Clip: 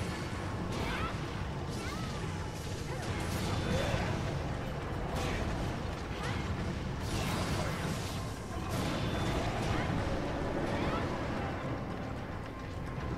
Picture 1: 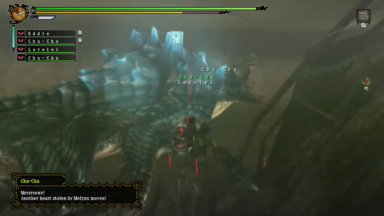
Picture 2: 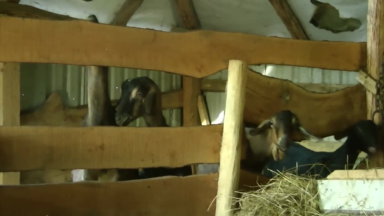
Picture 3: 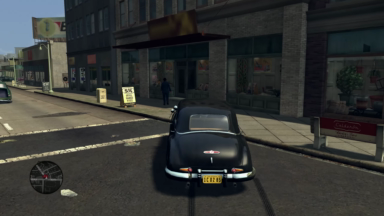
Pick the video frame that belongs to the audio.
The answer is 1